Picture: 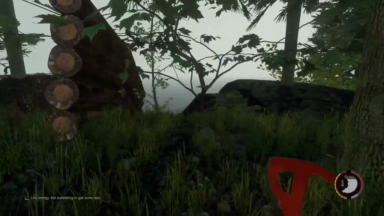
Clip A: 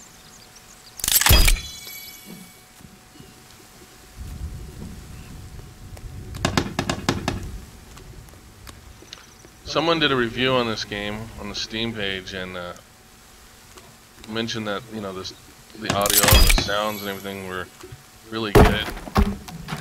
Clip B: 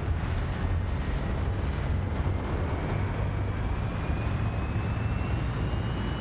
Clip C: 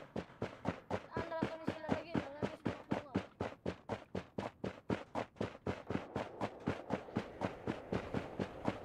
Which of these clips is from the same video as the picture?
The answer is A